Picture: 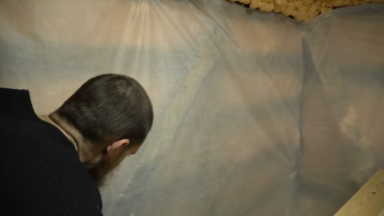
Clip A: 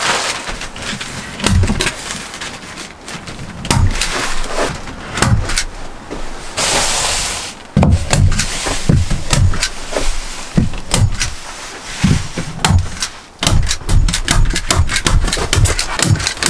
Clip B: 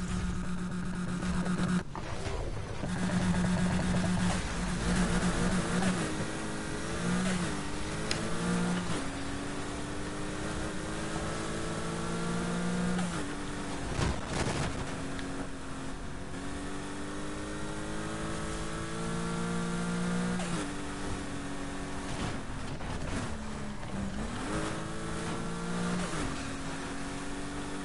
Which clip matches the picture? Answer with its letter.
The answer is A